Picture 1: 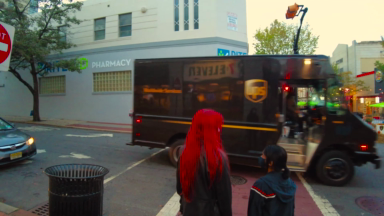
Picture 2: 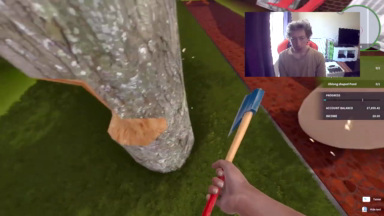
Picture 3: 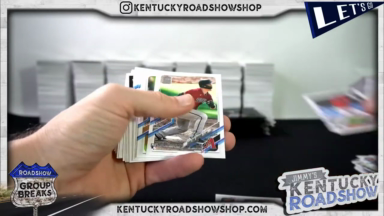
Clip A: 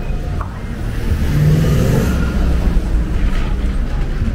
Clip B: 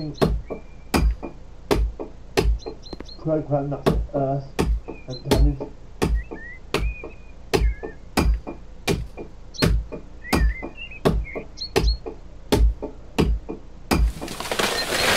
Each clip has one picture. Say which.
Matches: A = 1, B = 2